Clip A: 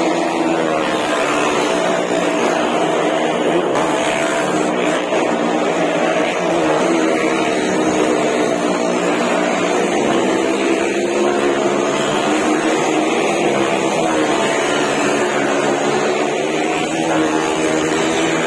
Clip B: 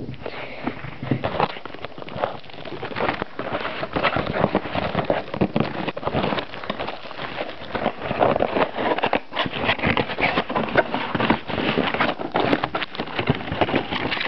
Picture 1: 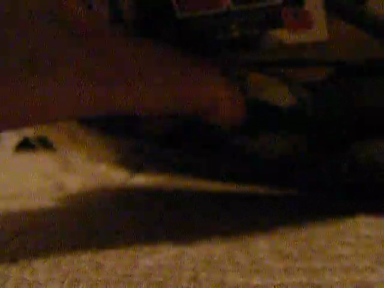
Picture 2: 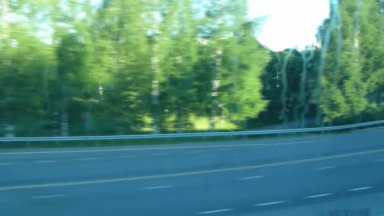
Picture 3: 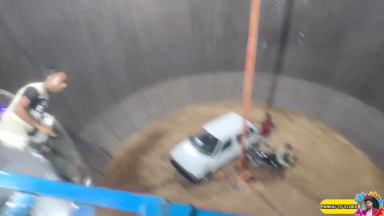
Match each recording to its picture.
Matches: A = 3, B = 1